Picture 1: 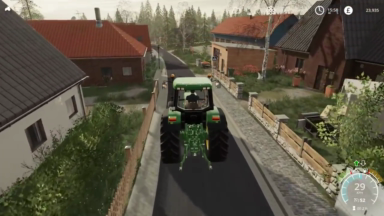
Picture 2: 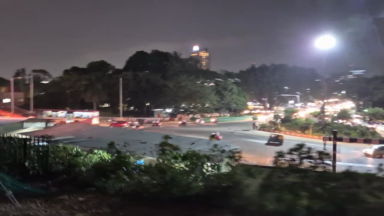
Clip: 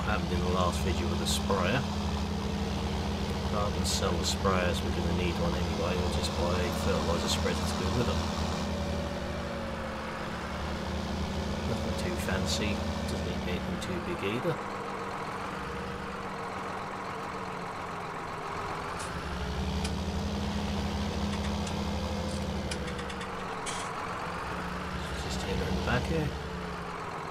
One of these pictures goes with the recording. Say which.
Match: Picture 1